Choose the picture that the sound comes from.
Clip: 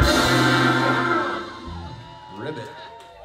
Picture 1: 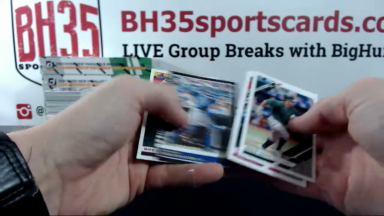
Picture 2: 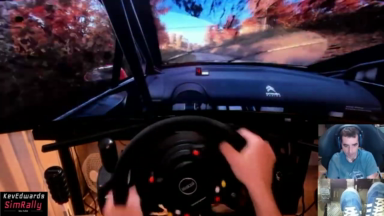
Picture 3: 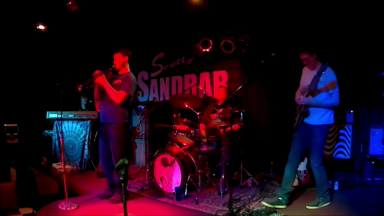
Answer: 3